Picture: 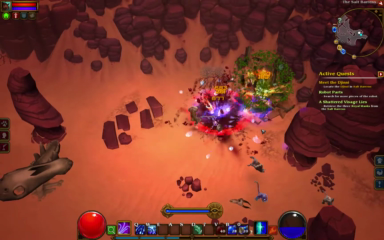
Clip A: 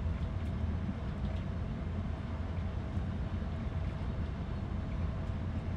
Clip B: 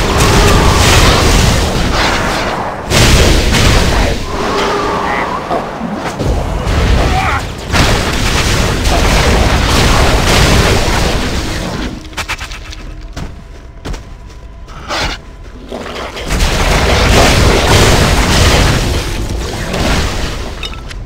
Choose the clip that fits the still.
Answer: B